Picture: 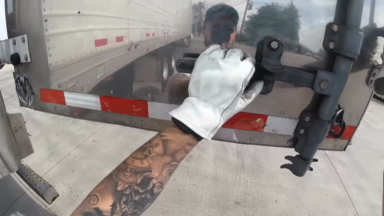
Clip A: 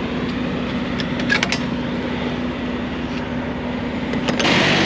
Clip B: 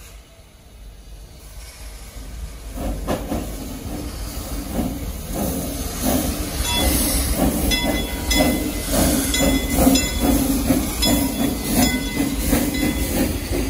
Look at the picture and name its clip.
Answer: A